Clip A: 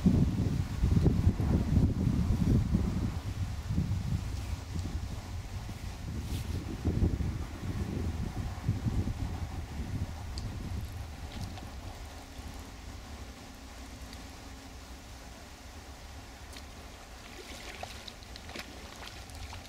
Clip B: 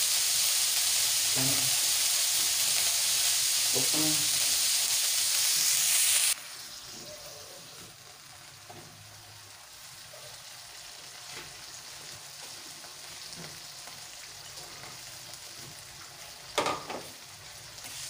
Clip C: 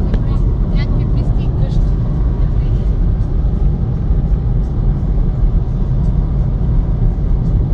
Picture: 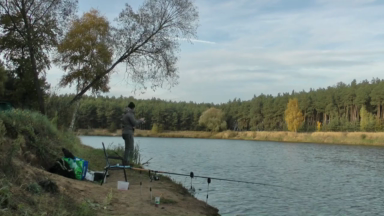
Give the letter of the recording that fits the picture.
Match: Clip A